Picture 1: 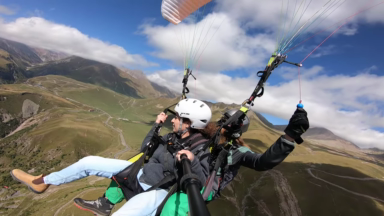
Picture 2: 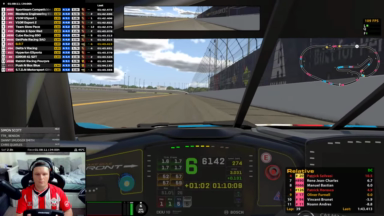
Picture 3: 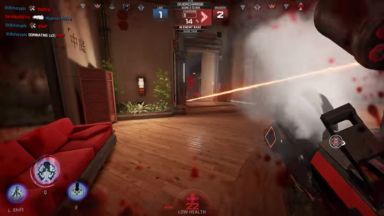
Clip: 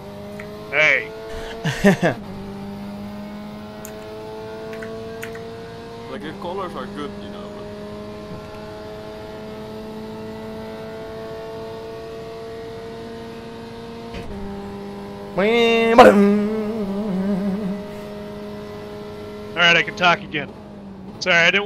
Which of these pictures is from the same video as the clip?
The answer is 2